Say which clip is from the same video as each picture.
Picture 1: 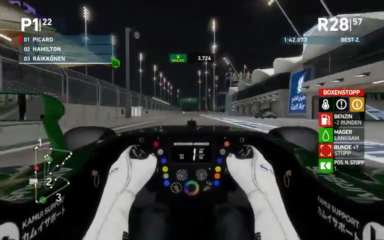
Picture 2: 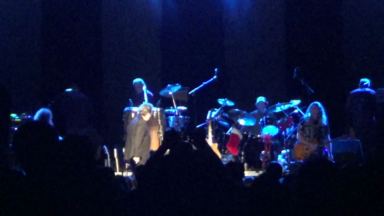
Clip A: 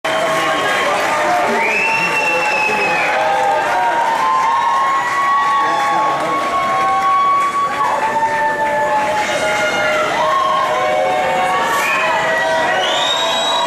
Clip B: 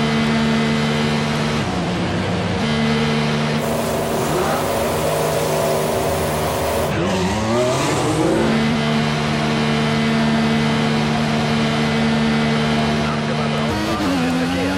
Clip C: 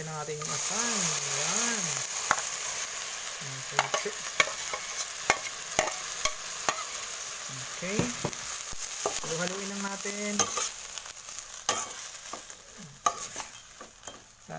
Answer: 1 B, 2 A